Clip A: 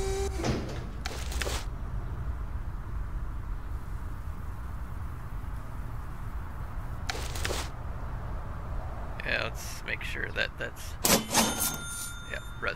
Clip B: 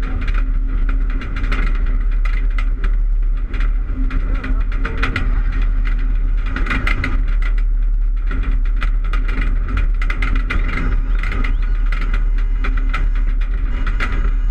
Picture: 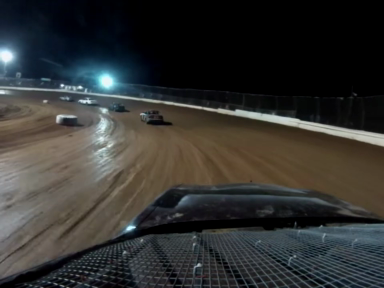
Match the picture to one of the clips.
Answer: B